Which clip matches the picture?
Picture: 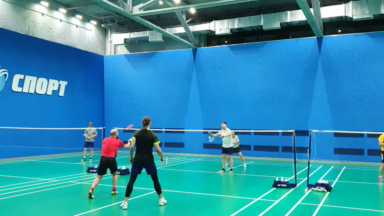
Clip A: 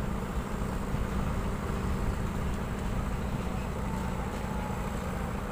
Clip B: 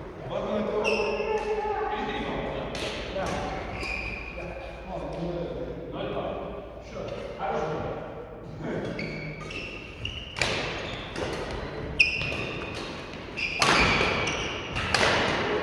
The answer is B